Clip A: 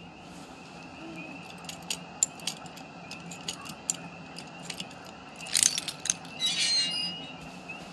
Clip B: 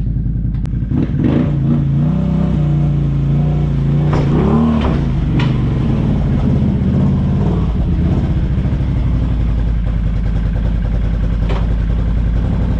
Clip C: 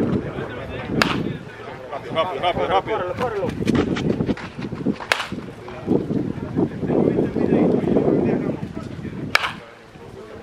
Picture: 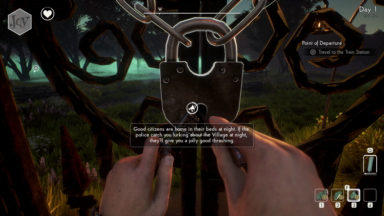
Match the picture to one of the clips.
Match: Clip A